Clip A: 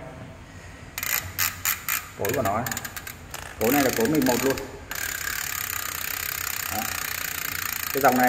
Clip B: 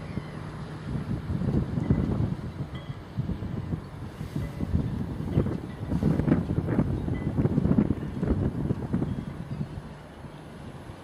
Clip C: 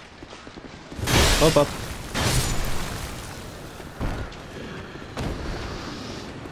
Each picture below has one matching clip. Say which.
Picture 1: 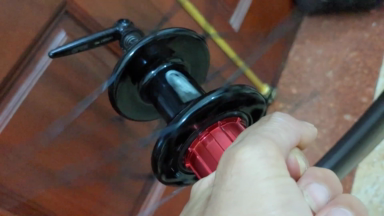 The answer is A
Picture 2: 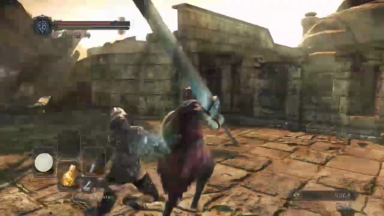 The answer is C